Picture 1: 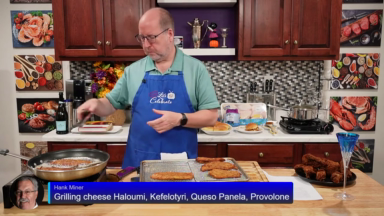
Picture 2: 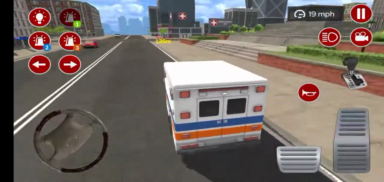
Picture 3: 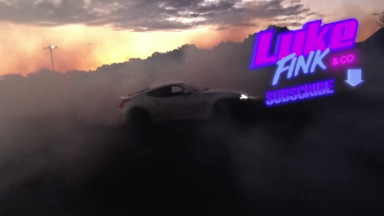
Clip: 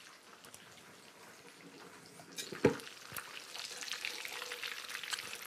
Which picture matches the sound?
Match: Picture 1